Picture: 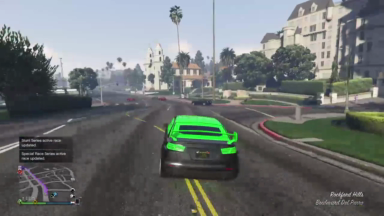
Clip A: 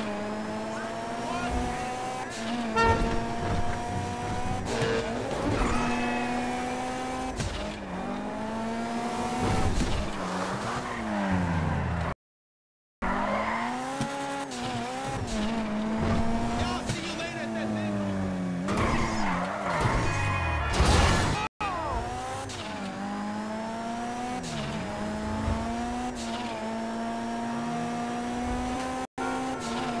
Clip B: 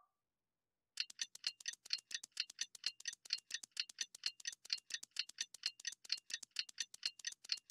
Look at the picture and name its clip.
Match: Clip A